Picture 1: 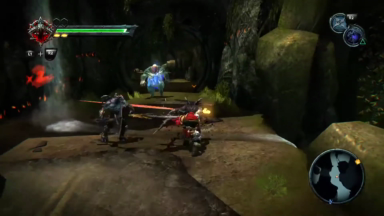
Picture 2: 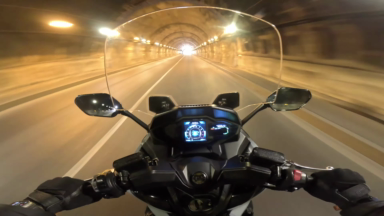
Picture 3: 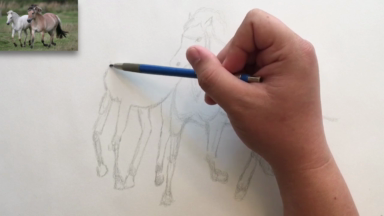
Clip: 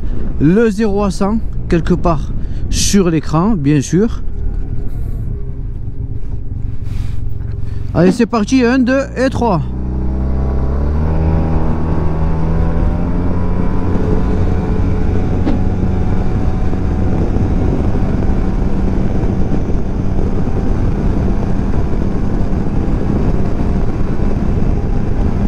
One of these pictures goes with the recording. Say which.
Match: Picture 2